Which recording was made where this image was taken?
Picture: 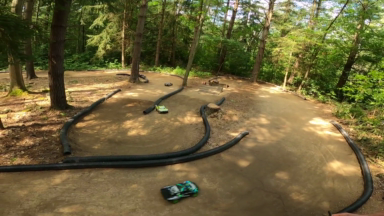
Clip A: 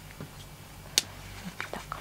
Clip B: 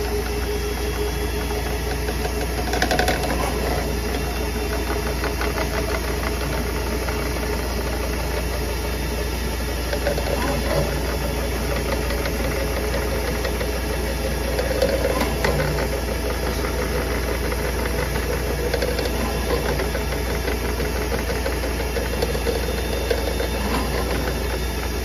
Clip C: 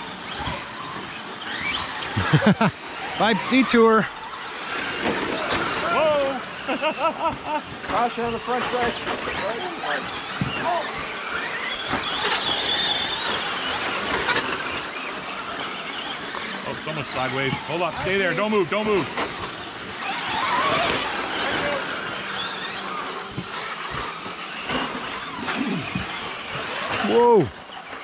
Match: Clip C